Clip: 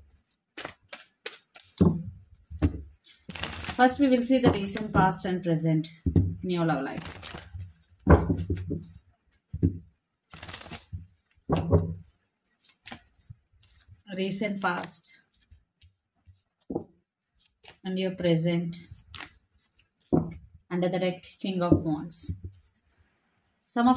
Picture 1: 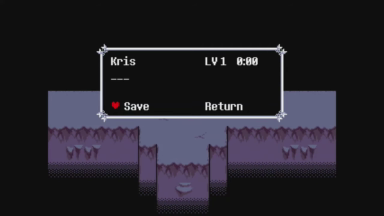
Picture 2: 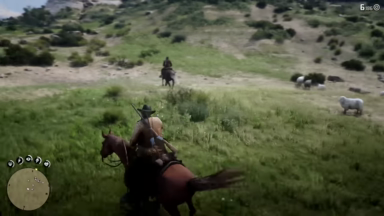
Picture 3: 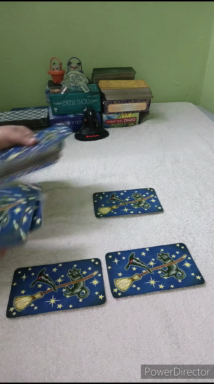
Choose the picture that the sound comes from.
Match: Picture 3